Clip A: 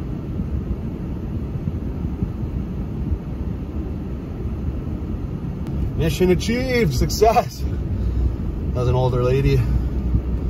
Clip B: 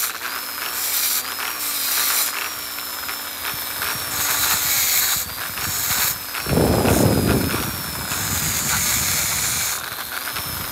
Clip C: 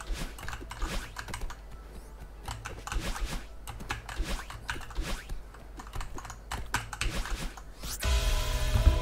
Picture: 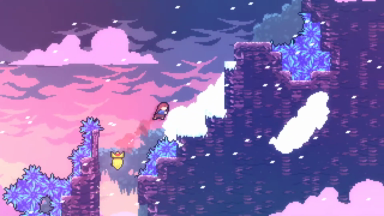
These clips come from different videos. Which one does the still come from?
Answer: C